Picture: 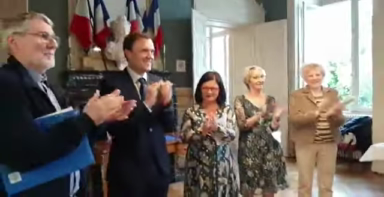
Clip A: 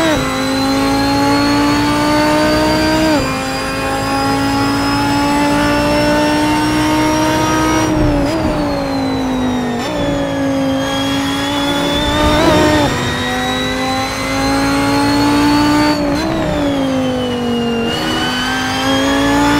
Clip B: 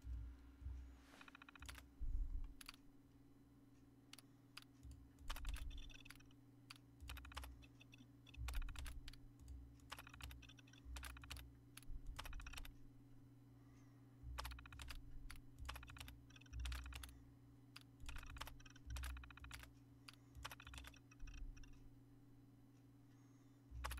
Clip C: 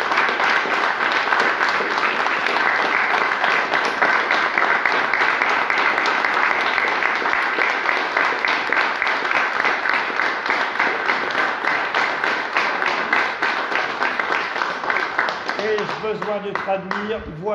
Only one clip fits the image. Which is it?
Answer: C